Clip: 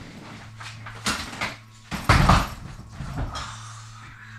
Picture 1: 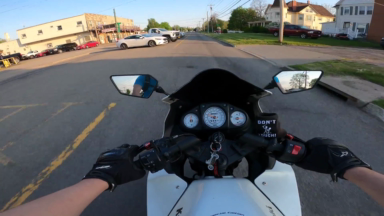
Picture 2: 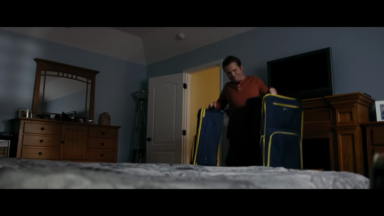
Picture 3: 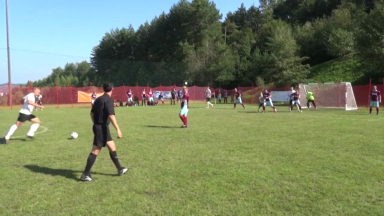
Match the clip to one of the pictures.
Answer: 2